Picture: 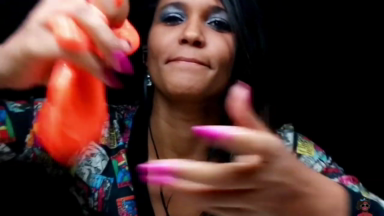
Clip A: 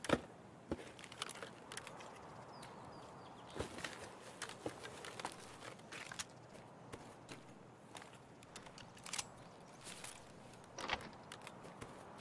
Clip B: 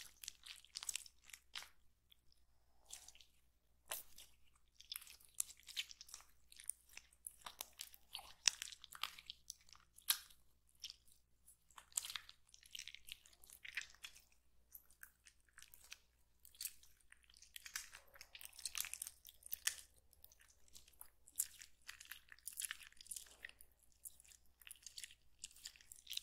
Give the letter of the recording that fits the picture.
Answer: B